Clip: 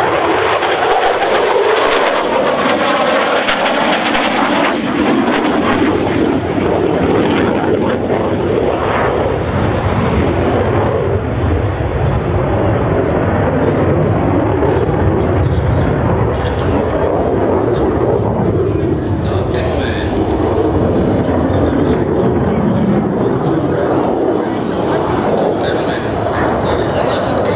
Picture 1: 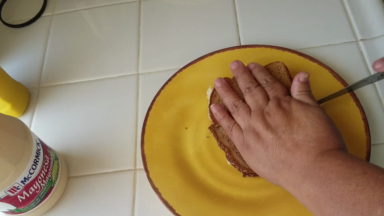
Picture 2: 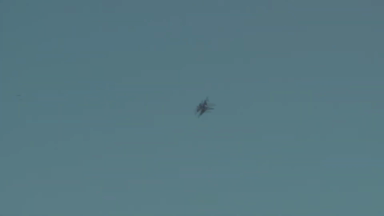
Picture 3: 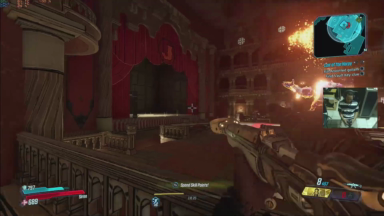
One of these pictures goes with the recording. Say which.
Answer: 2